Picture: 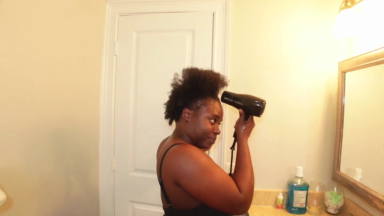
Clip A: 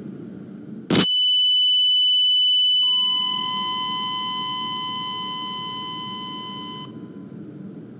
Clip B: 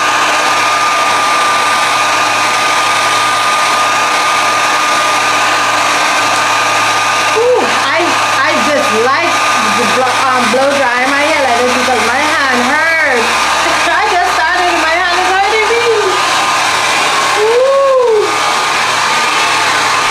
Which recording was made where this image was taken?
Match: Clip B